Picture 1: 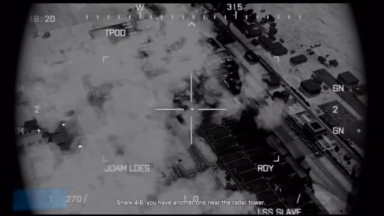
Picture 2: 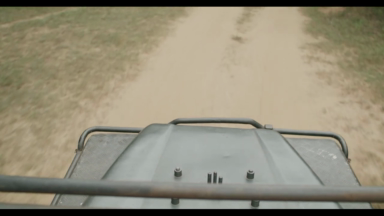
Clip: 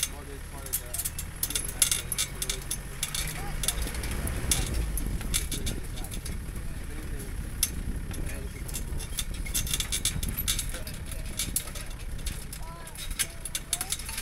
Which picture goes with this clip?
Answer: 2